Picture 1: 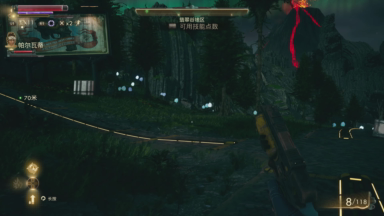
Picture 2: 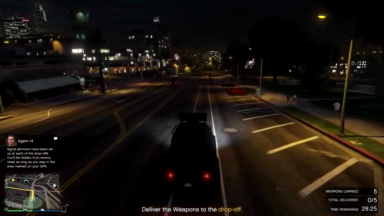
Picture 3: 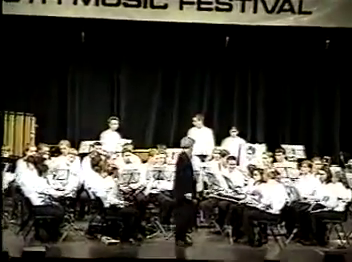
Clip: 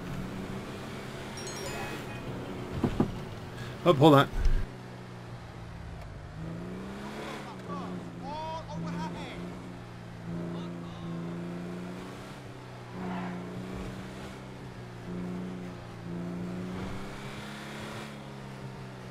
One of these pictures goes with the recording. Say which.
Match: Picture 2